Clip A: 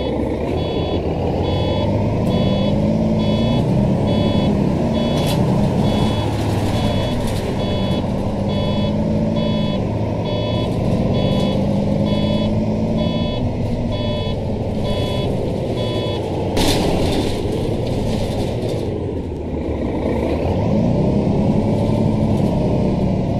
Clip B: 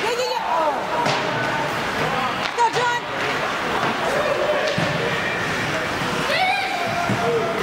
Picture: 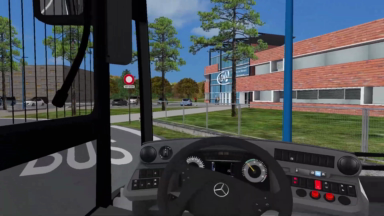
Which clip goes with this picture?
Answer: A